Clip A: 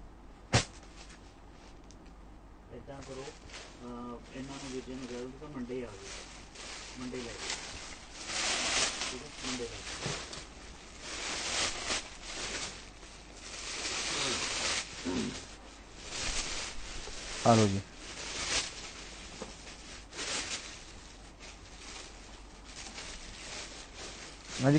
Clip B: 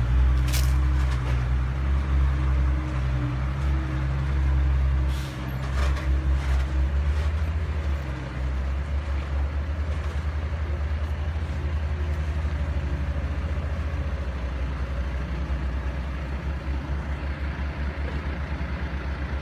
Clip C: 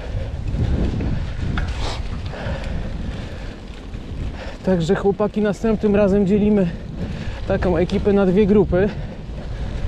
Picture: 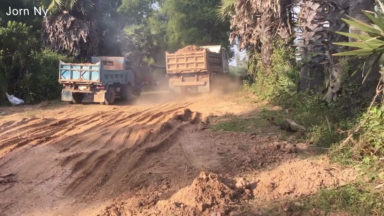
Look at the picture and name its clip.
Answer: B